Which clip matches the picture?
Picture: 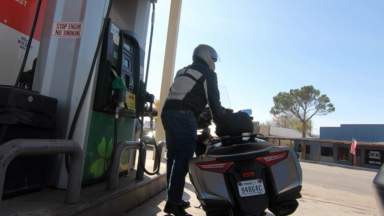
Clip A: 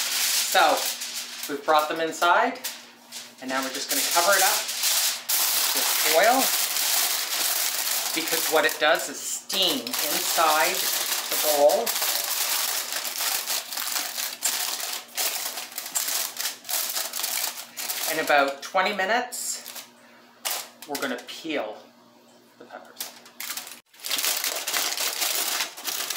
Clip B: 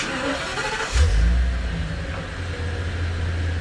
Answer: B